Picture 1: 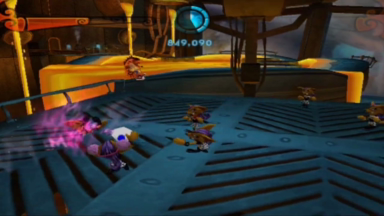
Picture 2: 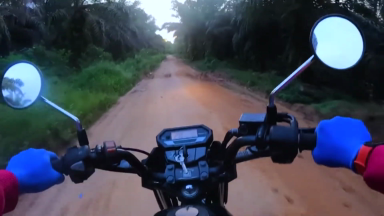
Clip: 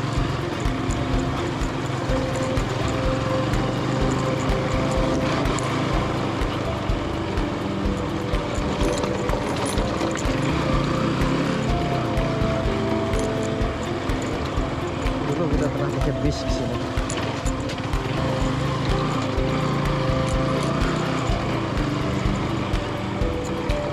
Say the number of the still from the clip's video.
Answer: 2